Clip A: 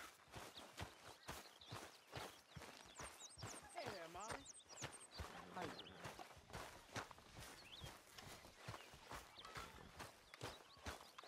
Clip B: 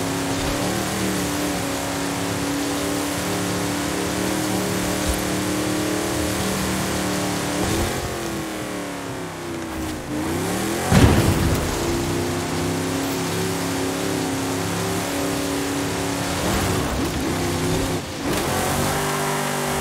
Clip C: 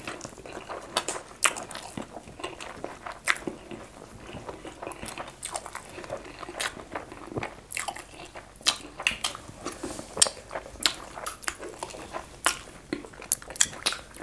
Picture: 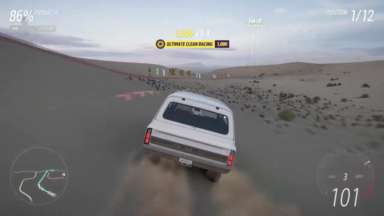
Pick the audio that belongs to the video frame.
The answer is B